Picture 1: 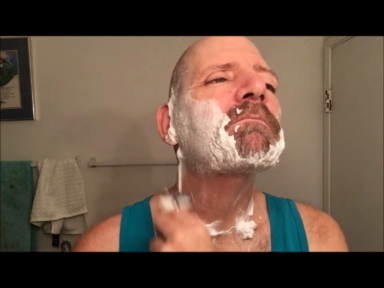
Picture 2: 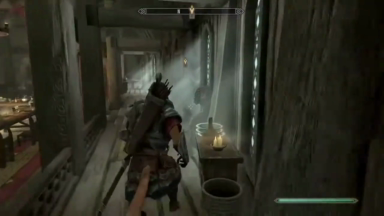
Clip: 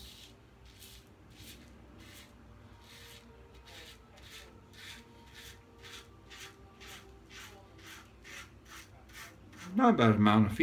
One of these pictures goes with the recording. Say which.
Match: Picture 1